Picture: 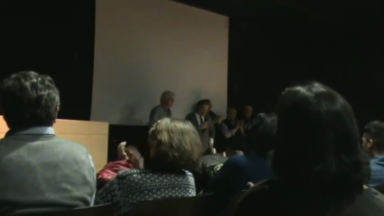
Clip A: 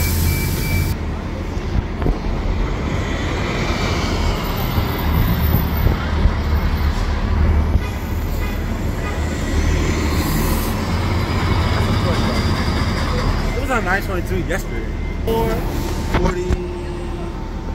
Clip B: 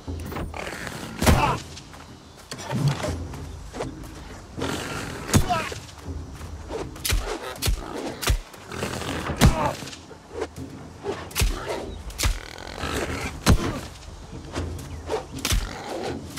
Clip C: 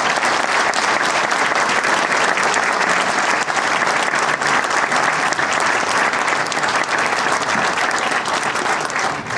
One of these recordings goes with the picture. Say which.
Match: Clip C